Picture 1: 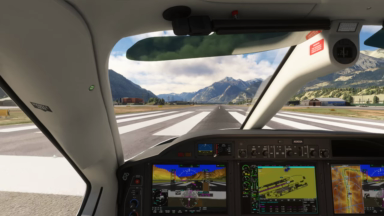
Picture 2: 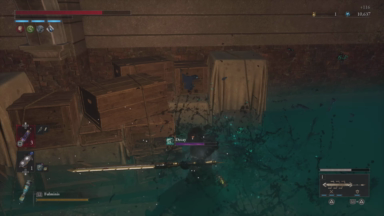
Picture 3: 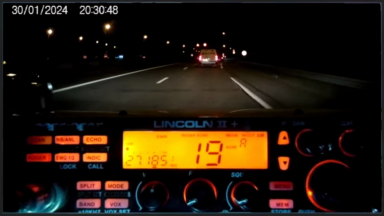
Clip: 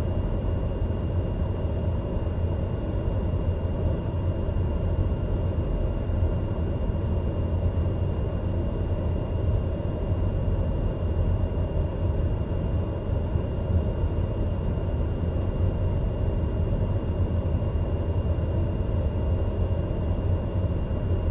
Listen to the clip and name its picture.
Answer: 1